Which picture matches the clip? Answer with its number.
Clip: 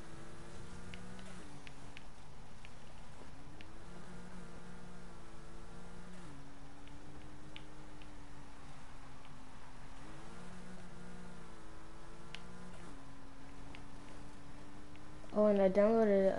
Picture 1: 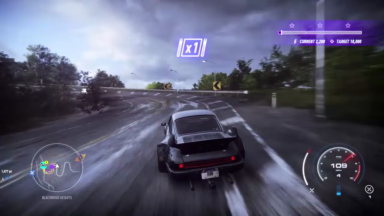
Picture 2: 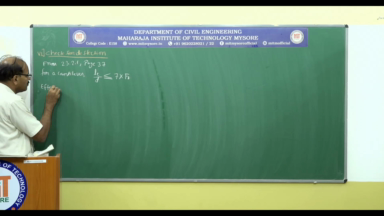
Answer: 1